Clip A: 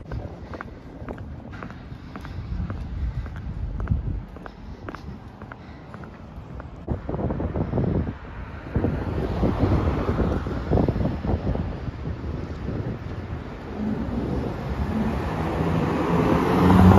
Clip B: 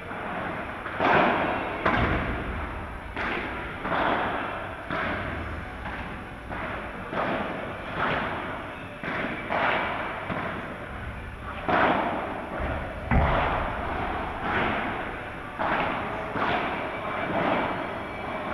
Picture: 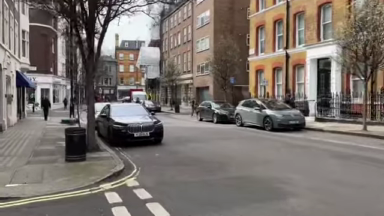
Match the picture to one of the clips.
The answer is A